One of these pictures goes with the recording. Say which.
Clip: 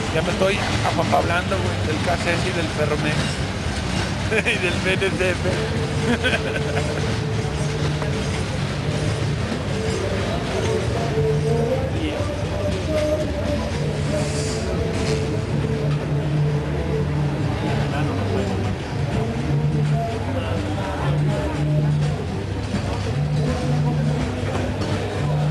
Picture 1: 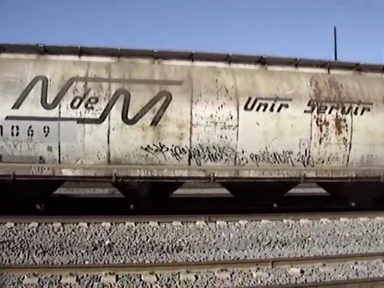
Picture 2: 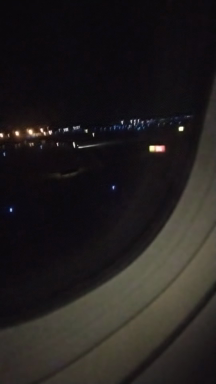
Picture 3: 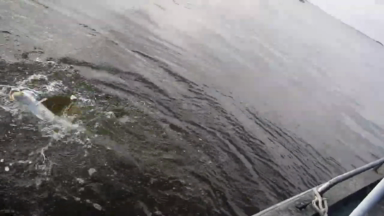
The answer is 1